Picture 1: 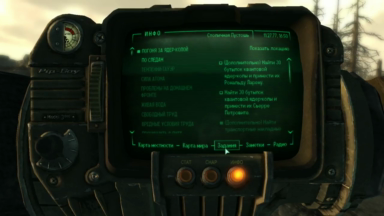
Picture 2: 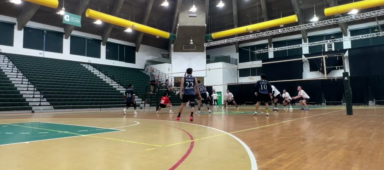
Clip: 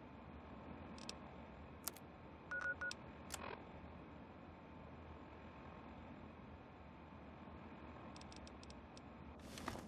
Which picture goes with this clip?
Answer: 1